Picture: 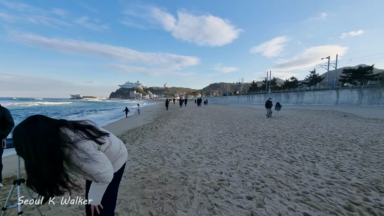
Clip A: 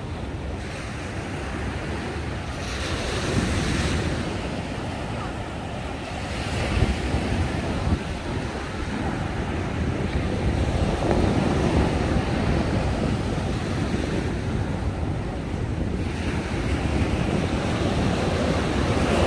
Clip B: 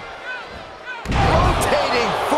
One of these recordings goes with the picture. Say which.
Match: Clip A